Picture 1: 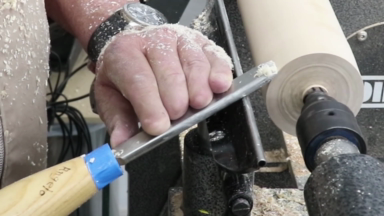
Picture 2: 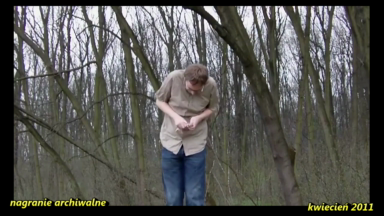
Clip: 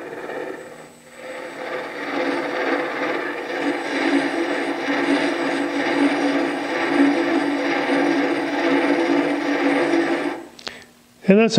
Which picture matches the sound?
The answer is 1